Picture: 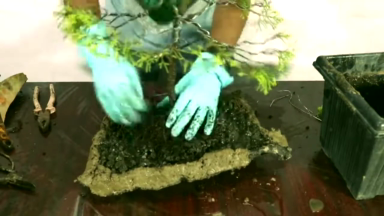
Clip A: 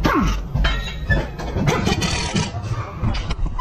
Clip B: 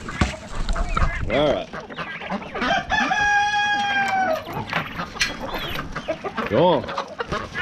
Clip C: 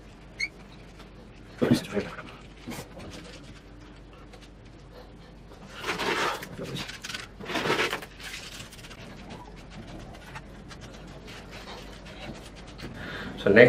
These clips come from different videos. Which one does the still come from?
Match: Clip C